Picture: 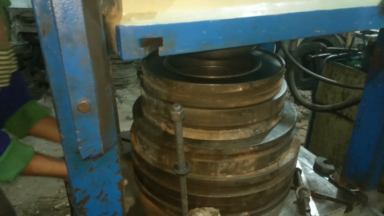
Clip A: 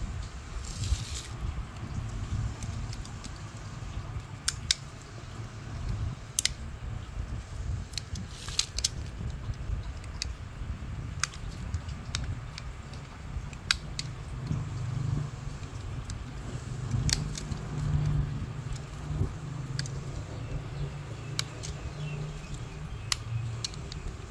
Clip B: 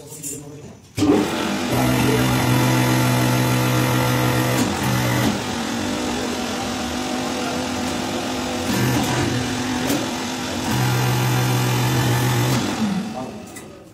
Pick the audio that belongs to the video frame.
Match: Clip B